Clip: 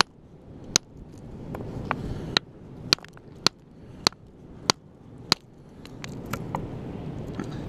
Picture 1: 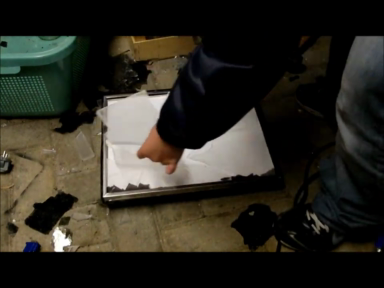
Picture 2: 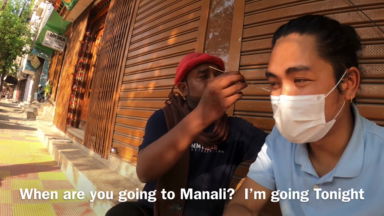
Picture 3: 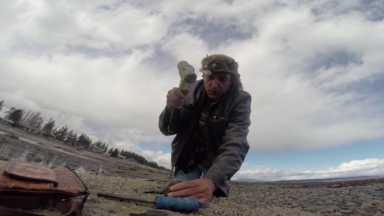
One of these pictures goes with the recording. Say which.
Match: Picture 3